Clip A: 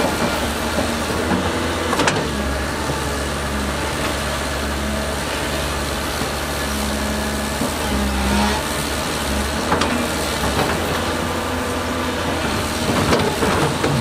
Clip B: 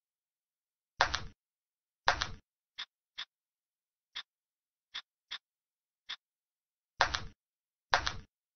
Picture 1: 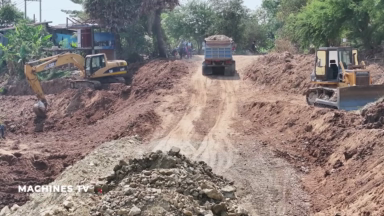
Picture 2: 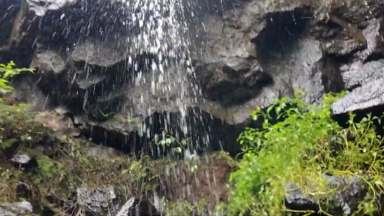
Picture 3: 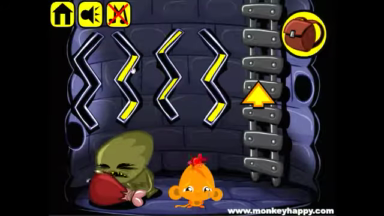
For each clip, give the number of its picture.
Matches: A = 1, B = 3